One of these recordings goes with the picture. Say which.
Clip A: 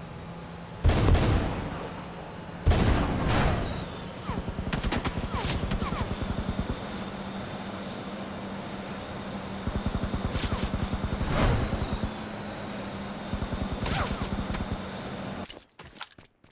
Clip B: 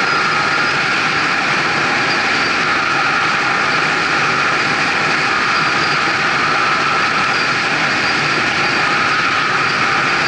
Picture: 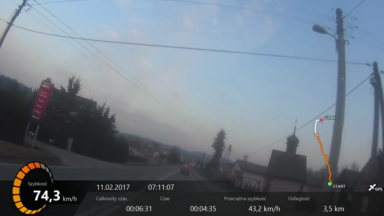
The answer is B